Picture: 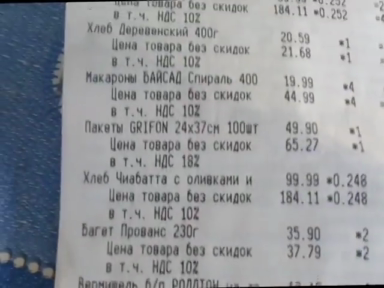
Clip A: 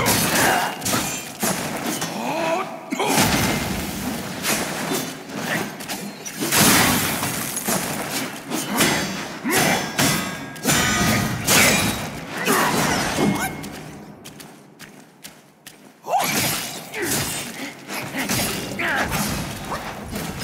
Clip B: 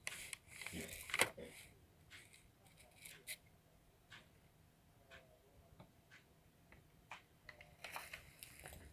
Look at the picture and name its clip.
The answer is B